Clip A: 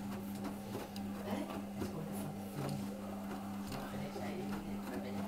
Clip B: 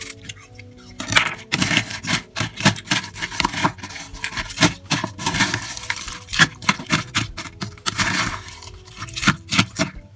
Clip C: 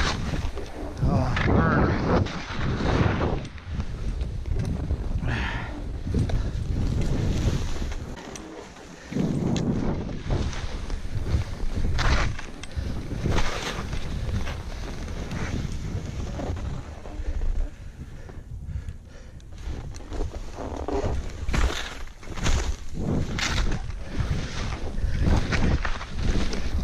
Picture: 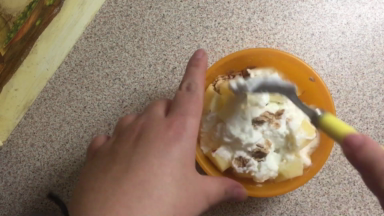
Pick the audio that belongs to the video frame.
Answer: B